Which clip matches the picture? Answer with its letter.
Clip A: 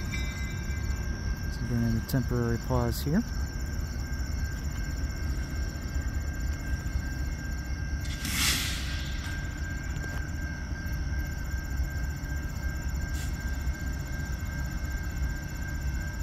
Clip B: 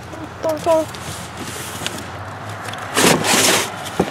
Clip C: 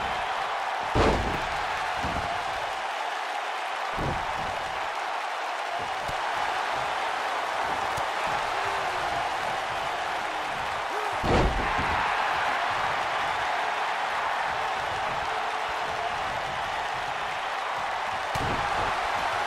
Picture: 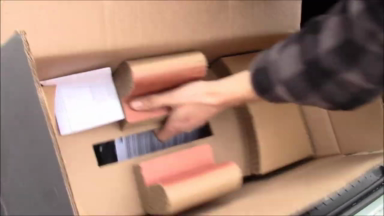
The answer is B